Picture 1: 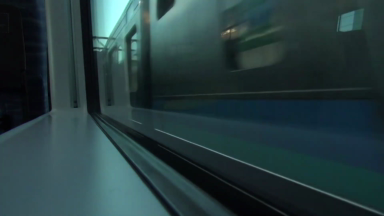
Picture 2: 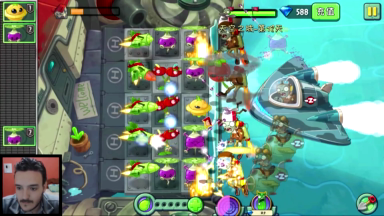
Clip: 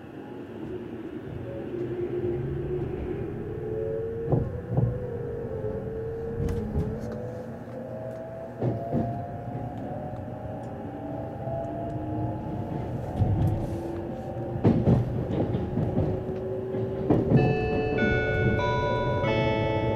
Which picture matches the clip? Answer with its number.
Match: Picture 1